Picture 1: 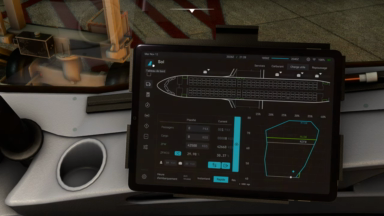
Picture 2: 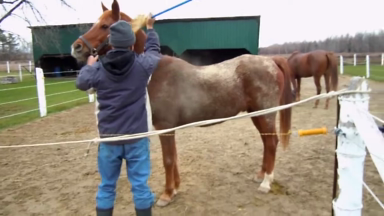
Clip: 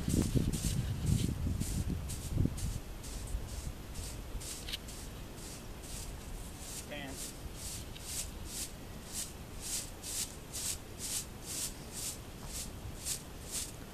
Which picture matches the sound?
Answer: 2